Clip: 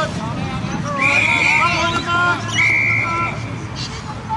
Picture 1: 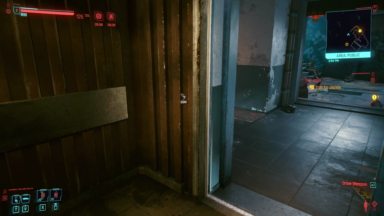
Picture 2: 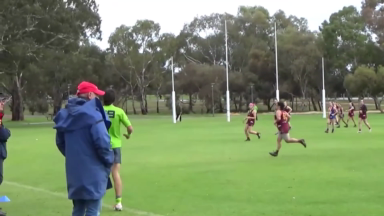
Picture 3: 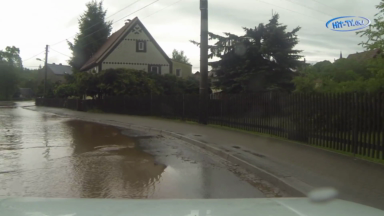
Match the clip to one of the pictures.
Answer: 2